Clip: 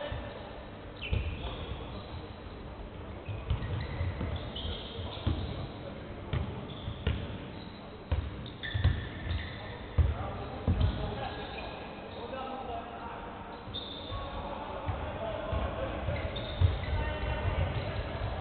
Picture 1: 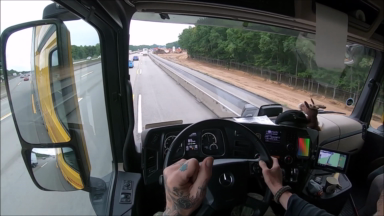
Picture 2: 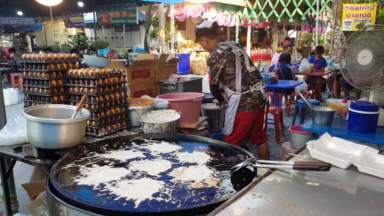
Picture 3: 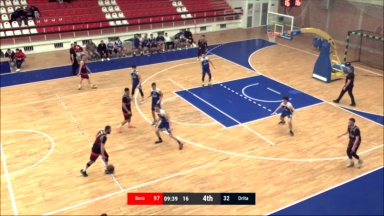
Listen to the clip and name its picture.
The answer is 3